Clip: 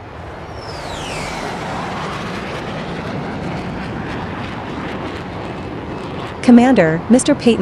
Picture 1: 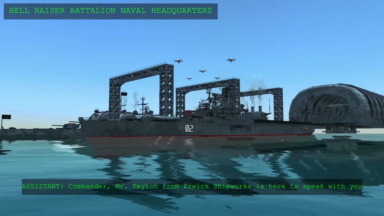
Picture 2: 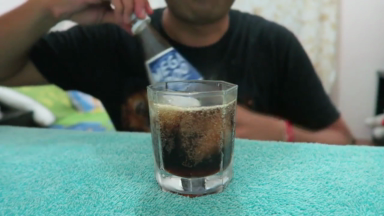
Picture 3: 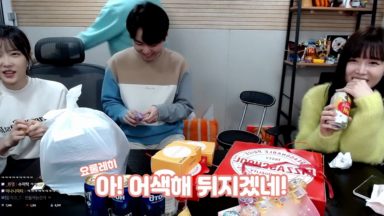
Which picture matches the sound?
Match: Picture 1